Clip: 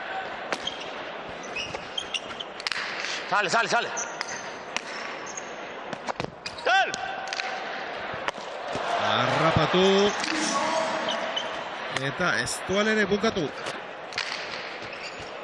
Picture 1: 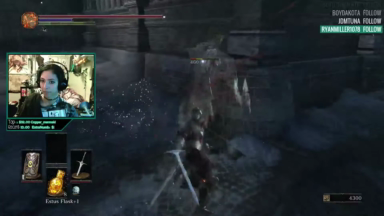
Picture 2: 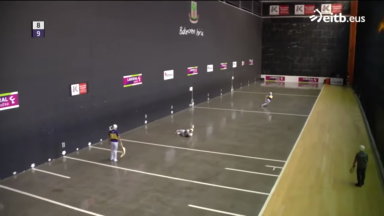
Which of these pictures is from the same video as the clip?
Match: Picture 2